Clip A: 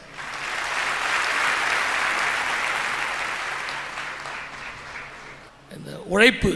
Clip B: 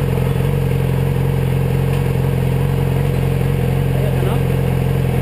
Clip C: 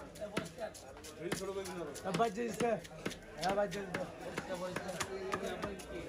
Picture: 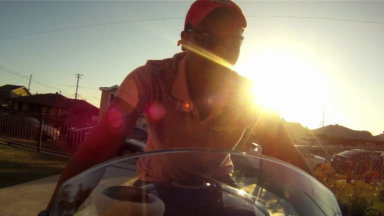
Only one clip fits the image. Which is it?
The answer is B